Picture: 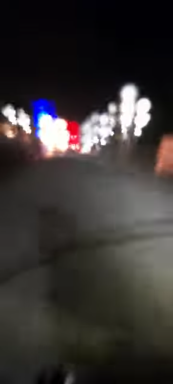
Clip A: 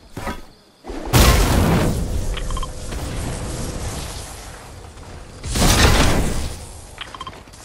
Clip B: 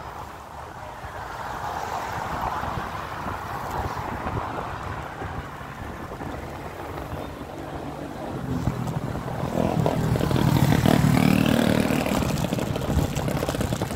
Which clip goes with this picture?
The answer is B